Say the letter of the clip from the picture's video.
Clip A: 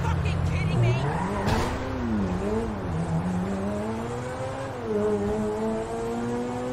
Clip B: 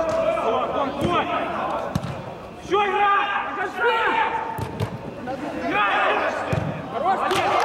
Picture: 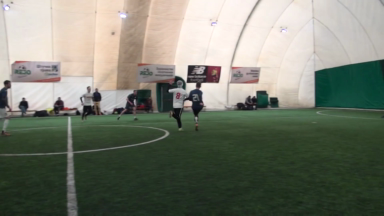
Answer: B